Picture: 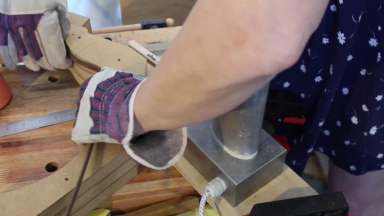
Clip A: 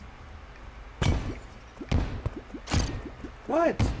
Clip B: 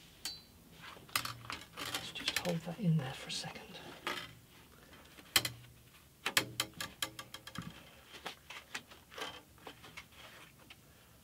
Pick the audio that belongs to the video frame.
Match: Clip B